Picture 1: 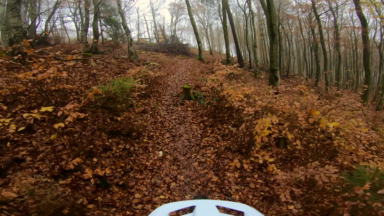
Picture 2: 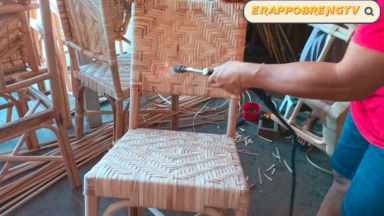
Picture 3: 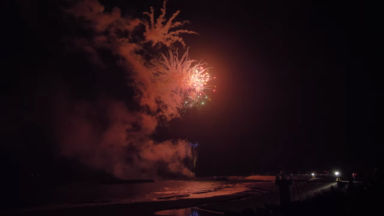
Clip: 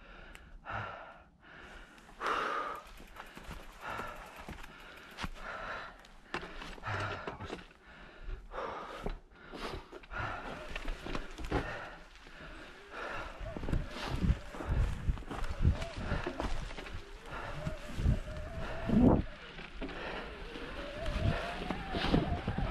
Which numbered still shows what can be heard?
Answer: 1